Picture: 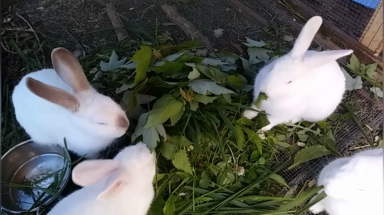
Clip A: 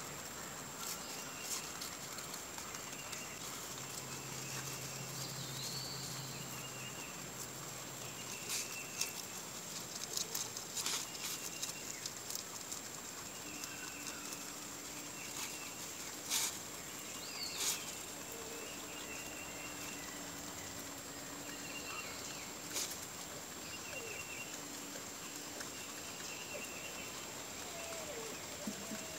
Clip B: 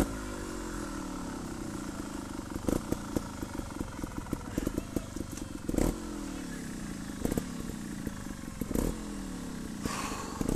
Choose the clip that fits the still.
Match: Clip A